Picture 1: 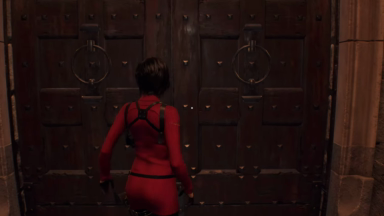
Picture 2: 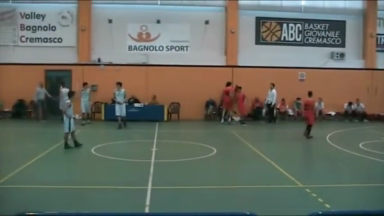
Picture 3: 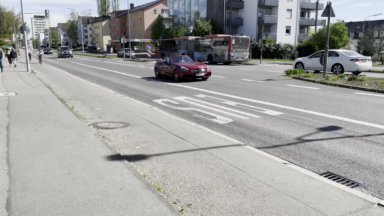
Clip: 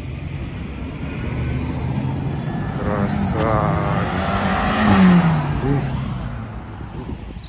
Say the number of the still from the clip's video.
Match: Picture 3